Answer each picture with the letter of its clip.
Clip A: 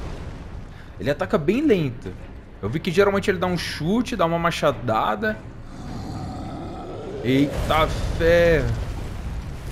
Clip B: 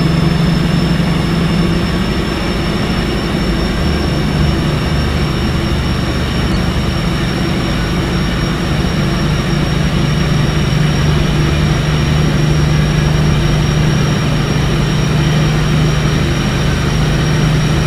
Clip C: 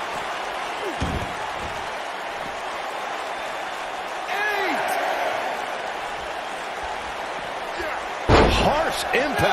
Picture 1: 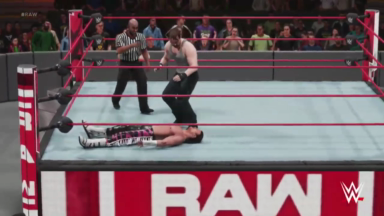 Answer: C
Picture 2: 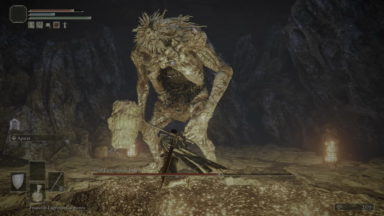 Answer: A